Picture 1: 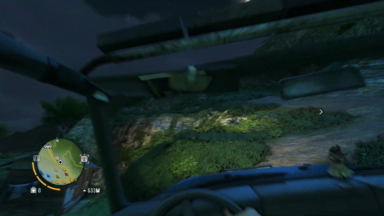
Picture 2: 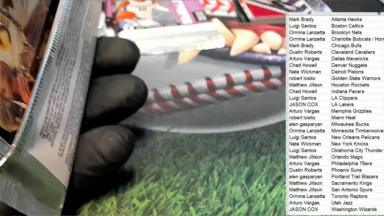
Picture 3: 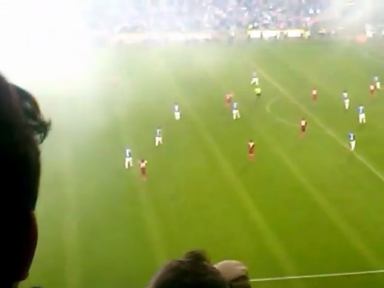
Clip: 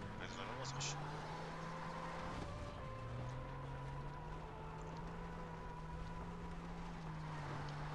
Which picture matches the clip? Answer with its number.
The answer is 1